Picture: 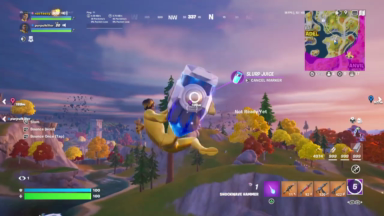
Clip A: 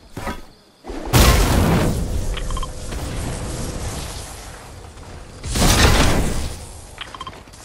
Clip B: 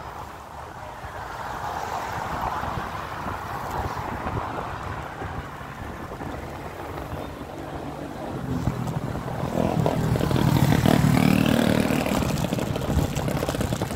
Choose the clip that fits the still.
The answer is A